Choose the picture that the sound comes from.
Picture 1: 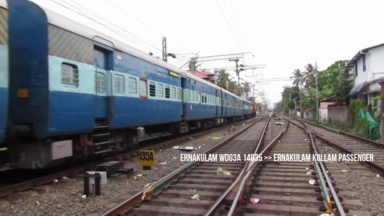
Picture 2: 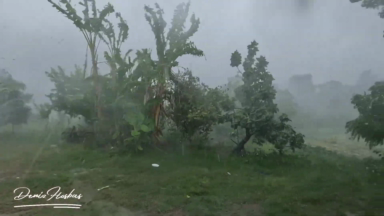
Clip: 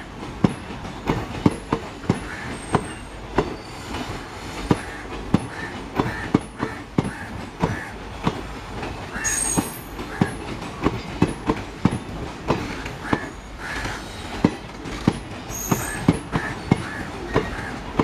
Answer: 1